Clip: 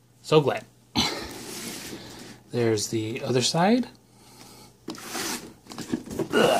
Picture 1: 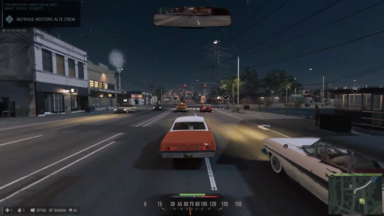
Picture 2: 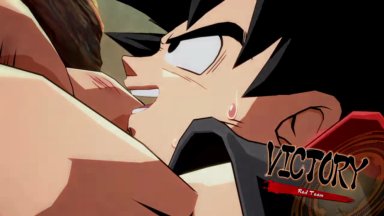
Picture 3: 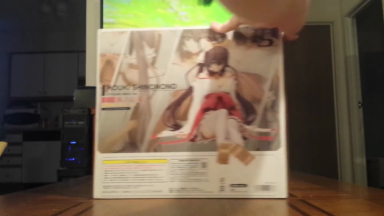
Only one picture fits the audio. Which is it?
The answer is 3